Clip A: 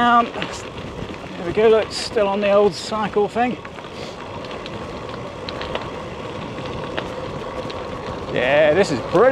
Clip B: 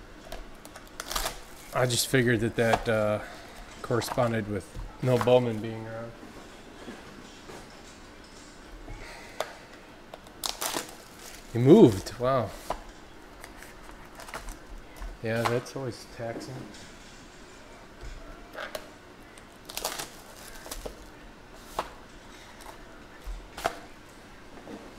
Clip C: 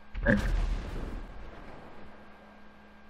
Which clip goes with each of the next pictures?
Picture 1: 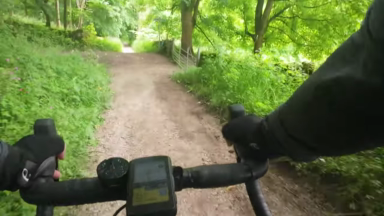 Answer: A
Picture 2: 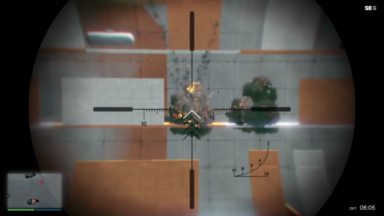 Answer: C